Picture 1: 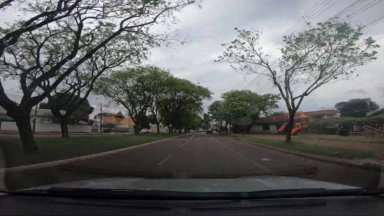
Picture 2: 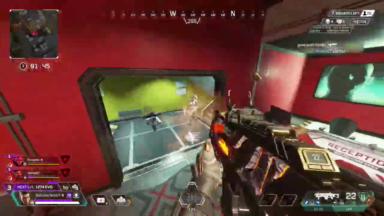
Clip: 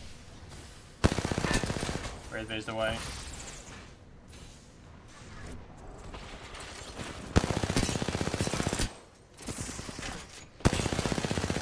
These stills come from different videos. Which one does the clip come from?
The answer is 2